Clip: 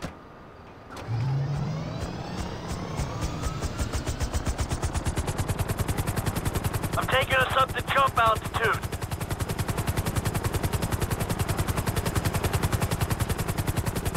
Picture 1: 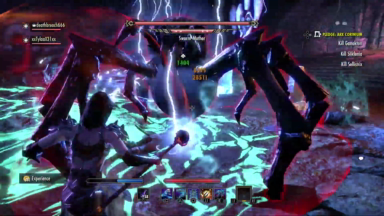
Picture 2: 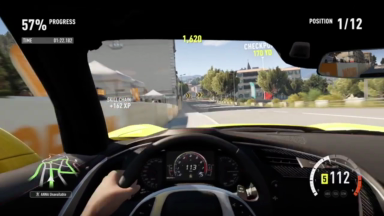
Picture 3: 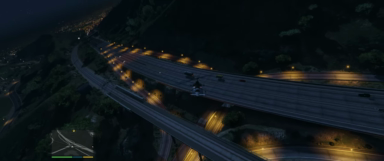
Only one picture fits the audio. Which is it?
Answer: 3